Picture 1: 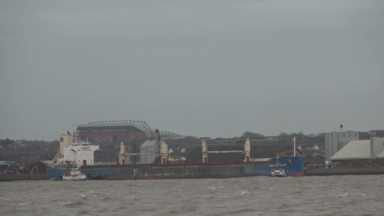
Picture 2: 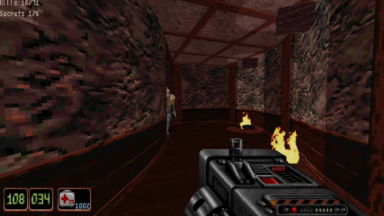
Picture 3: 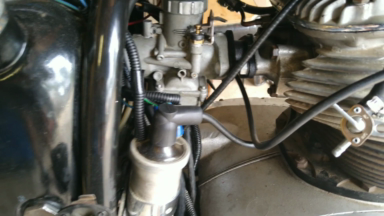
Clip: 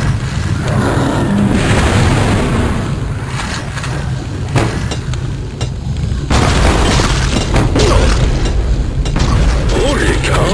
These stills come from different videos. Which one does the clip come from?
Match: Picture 2